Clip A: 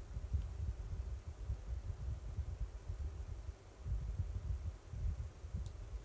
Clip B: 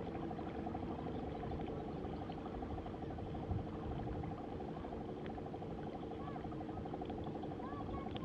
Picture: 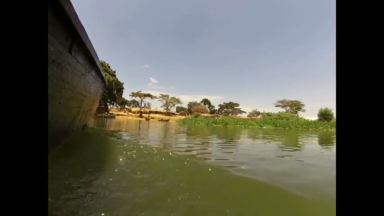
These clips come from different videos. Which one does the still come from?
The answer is B